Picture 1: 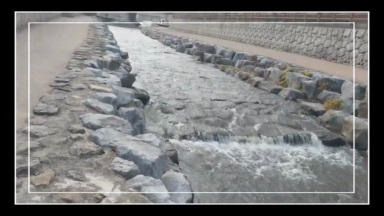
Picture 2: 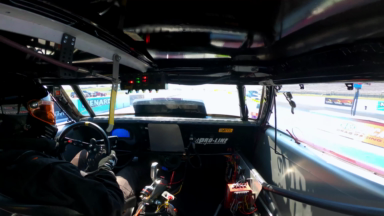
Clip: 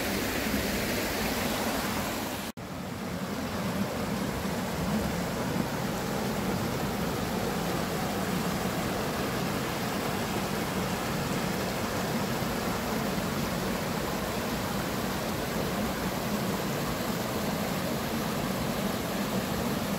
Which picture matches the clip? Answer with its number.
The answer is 1